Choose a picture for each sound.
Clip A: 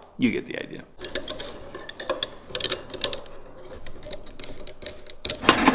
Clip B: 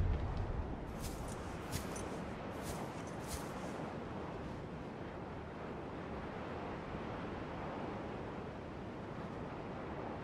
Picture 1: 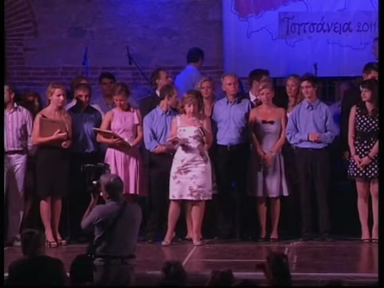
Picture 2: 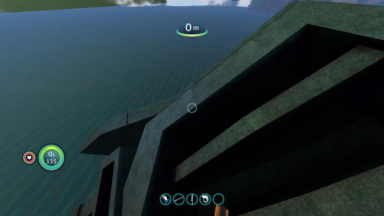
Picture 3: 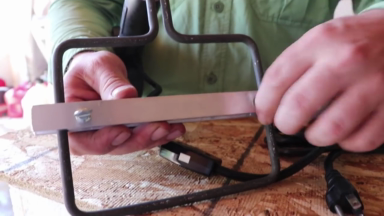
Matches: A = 3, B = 2